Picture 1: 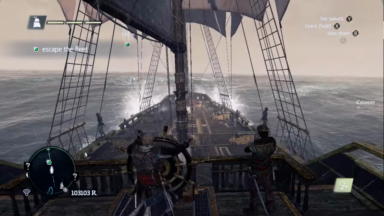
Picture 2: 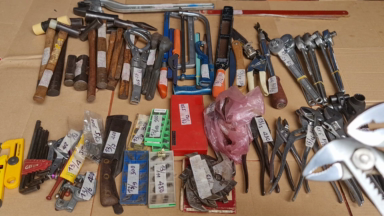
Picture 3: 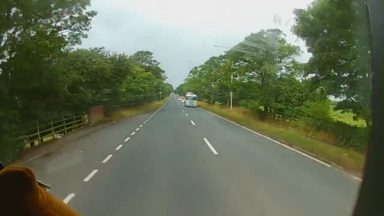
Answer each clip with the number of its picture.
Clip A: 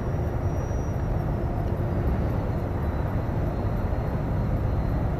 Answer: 3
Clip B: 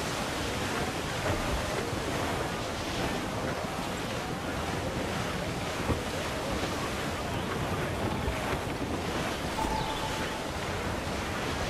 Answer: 1